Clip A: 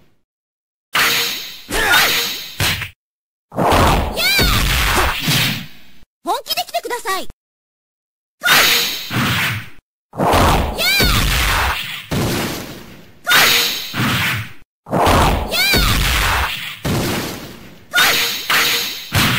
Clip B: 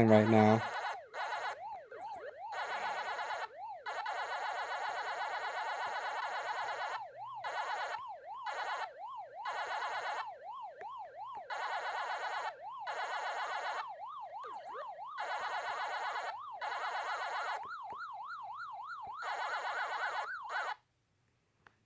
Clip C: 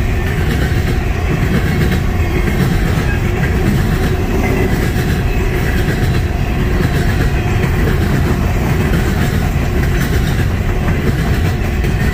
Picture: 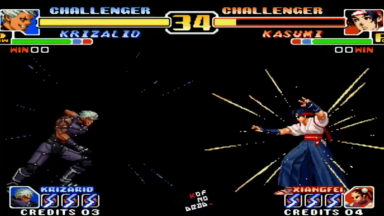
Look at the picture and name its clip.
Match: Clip A